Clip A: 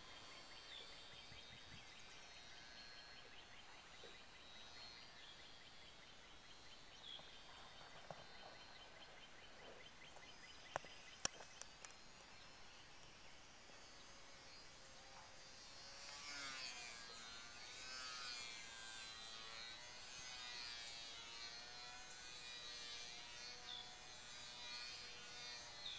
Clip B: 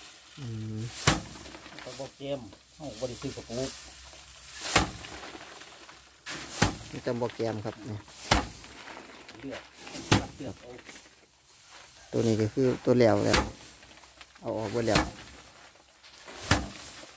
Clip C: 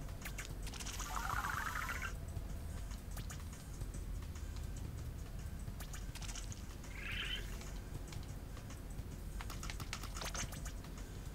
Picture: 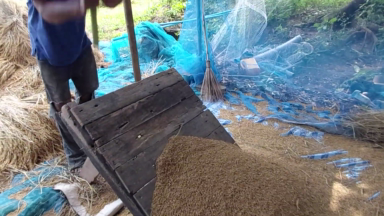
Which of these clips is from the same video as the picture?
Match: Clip B